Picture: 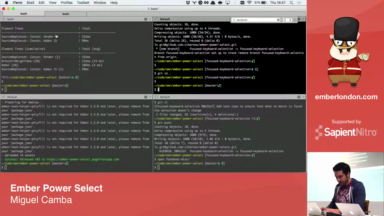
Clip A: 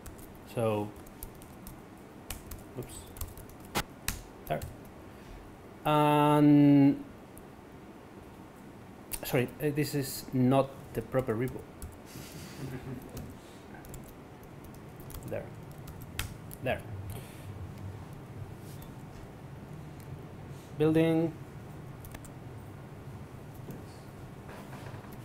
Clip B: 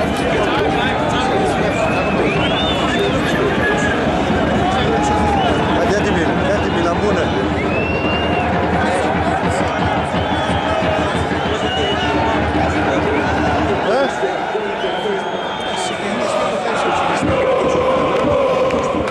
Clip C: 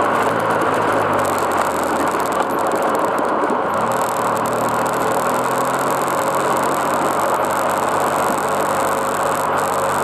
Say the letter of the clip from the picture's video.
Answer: A